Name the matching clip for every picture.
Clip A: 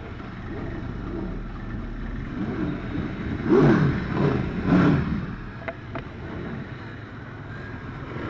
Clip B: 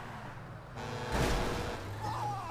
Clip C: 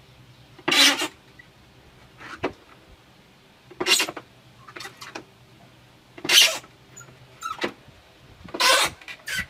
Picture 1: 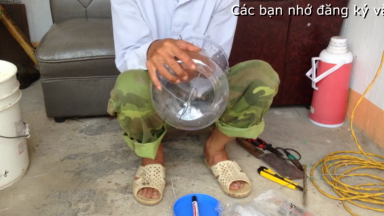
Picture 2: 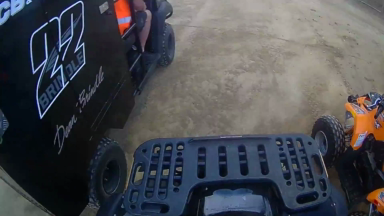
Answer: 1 C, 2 A